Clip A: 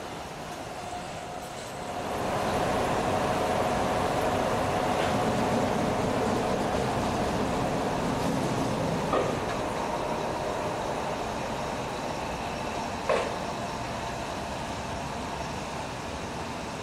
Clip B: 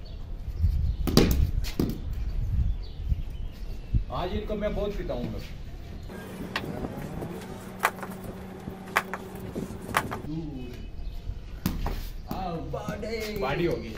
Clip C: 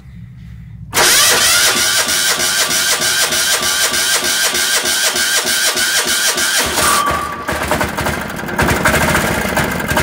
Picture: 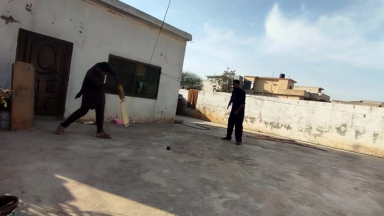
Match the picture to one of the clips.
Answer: B